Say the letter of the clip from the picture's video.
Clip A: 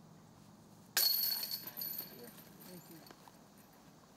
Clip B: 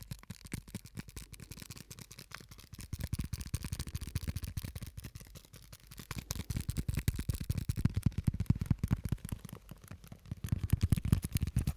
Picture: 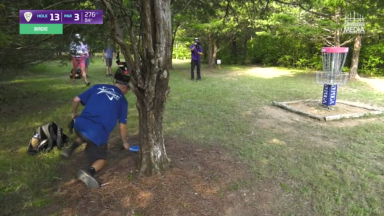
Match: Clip A